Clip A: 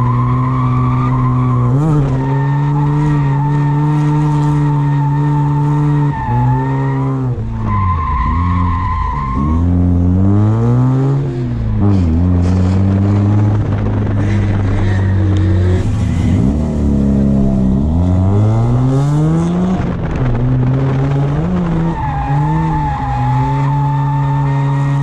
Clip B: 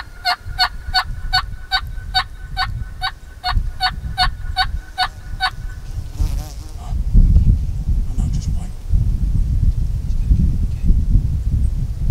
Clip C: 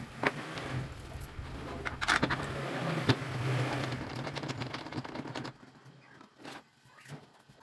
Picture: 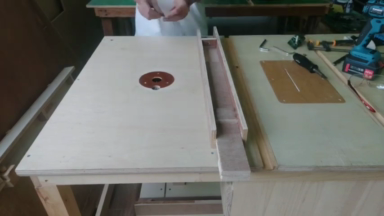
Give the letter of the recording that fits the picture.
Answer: C